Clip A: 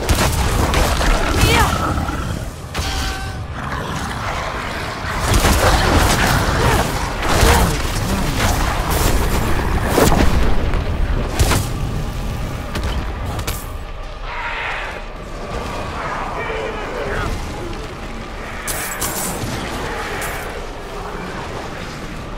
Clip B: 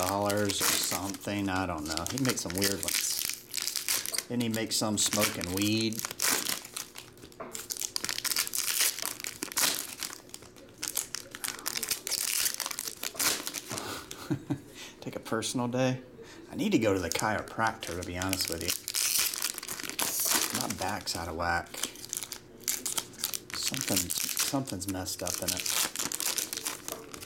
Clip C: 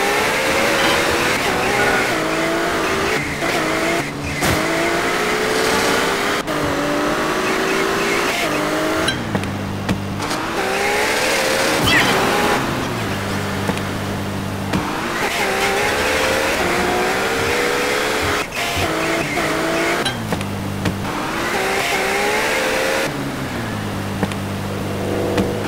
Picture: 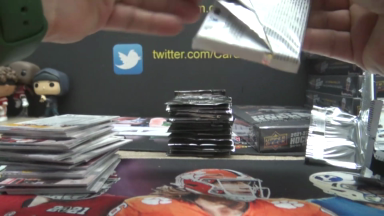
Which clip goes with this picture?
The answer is B